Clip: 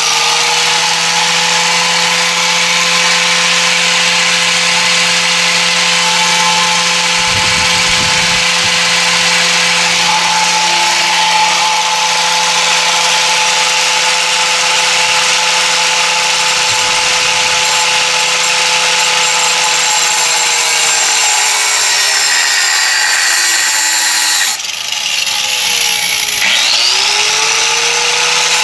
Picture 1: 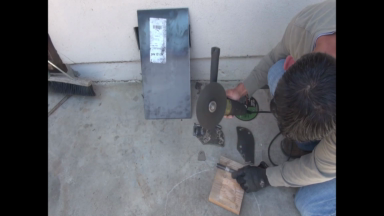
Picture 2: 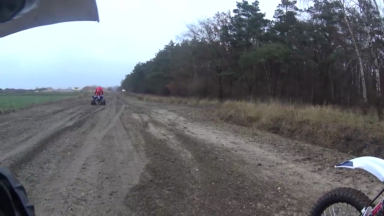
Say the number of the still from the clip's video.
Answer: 1